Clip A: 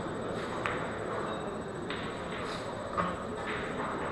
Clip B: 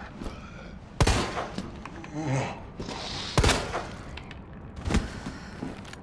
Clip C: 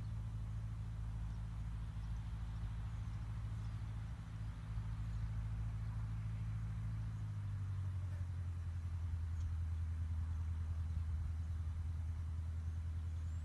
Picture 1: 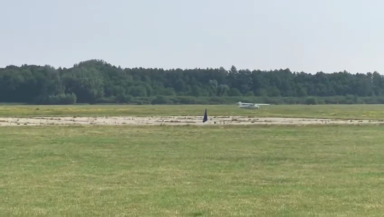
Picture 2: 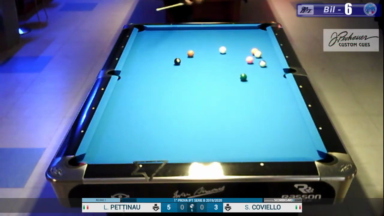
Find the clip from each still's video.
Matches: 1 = C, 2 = A